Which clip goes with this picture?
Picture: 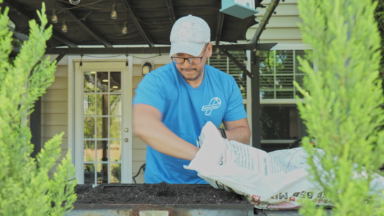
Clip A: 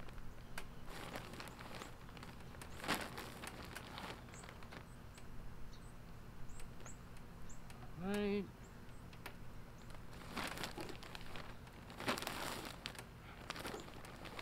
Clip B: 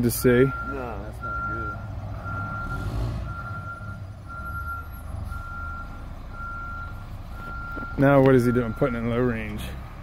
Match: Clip A